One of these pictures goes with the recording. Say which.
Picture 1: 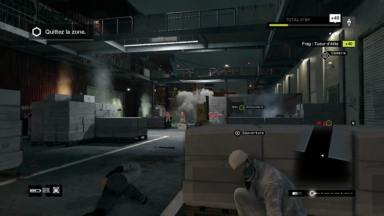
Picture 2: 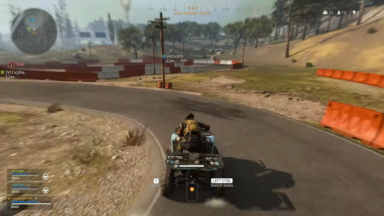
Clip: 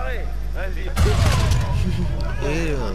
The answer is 1